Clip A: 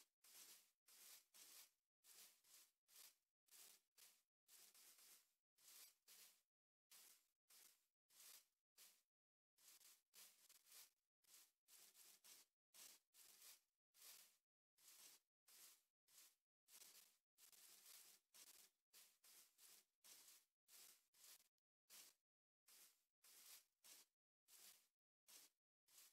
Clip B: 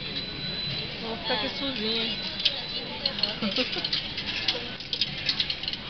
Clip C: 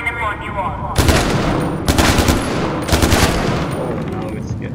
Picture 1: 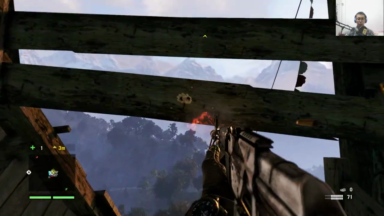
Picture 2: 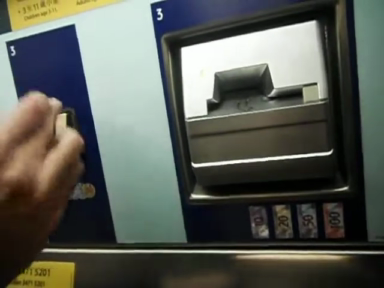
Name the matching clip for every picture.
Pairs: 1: C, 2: B